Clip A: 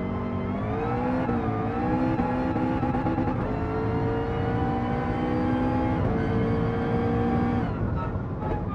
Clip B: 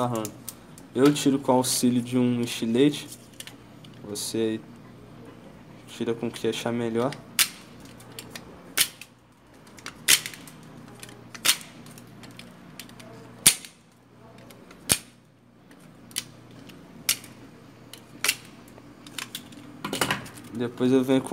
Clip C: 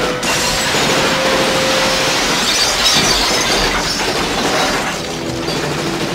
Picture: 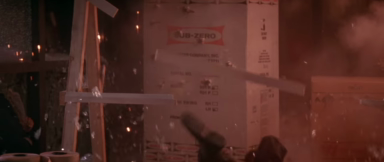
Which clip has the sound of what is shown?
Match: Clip C